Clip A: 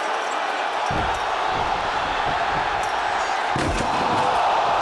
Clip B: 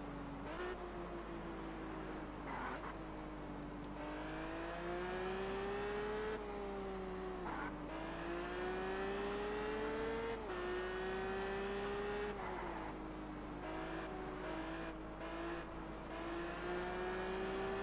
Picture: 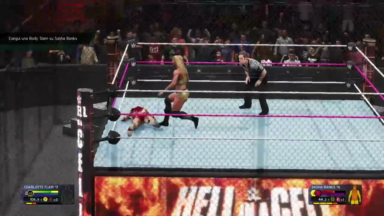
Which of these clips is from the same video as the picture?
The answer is A